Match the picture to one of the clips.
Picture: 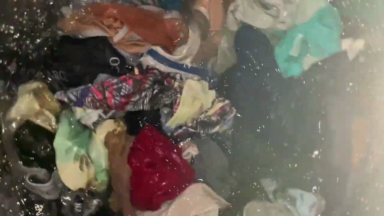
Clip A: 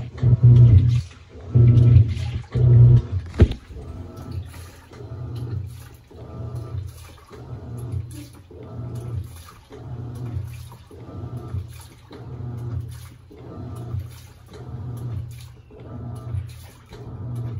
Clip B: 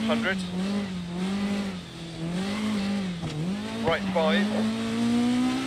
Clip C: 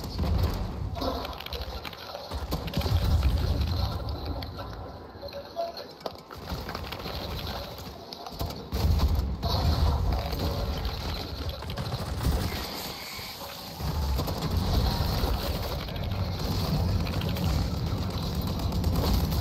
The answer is A